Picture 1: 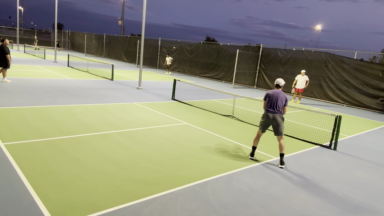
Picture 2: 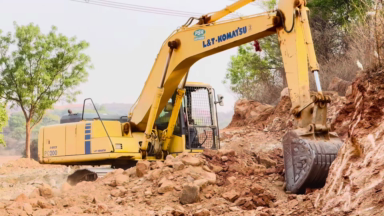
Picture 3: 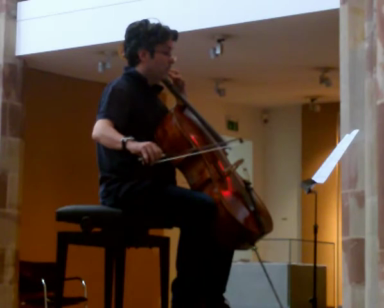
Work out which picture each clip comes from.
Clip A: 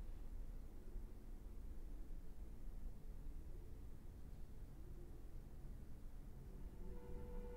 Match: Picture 3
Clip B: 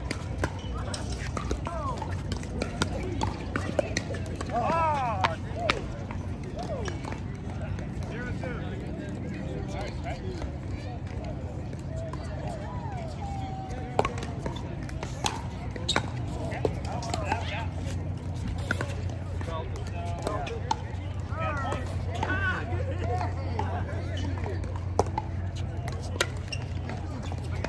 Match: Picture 1